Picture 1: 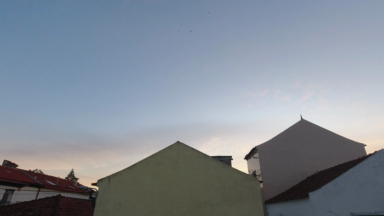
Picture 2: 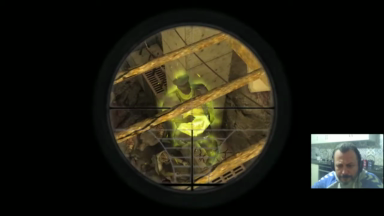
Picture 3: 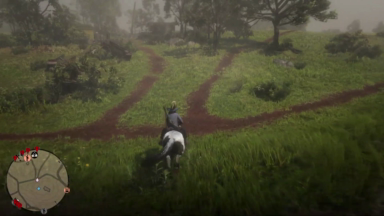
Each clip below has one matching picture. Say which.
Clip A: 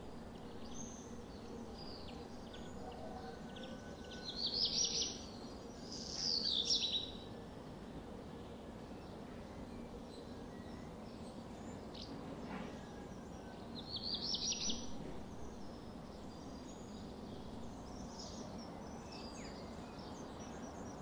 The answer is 1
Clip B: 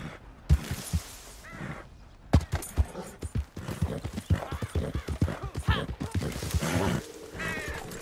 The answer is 3